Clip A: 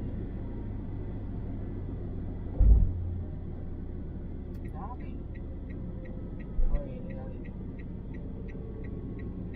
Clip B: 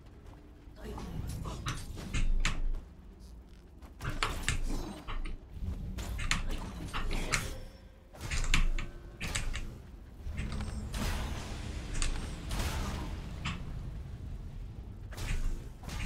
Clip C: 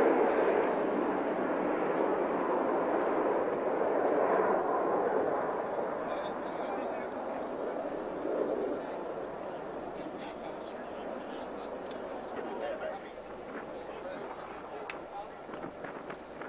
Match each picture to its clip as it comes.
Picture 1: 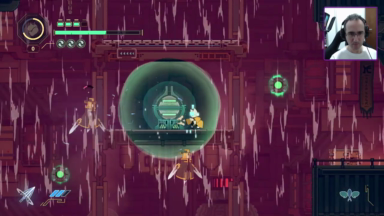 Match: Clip B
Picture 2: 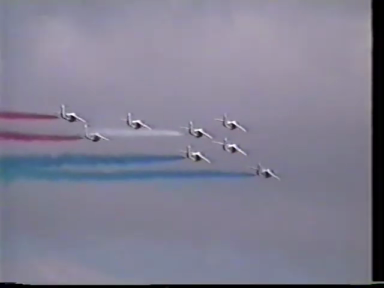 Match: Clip C